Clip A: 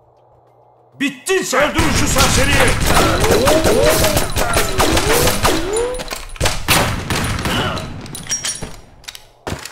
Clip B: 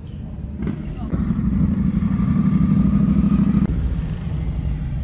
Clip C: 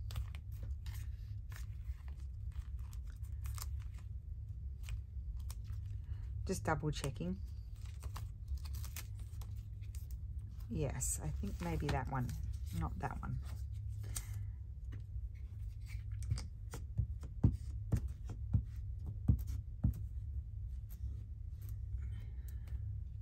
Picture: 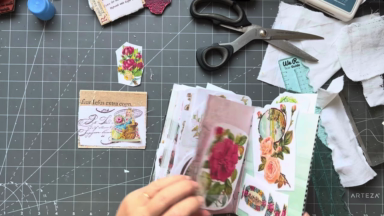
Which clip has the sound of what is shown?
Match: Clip C